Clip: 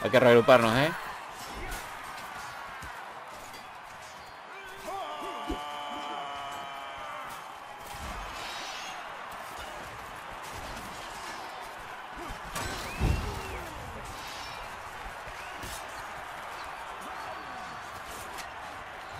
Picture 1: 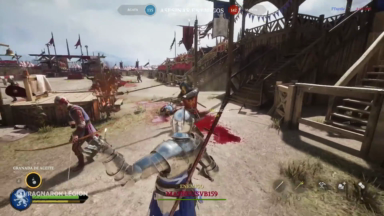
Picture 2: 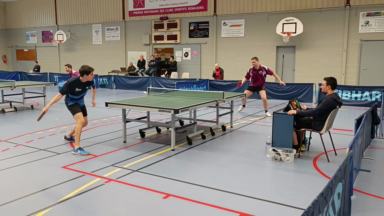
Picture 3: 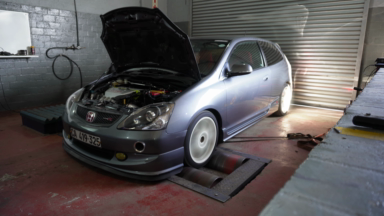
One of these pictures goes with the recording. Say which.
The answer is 1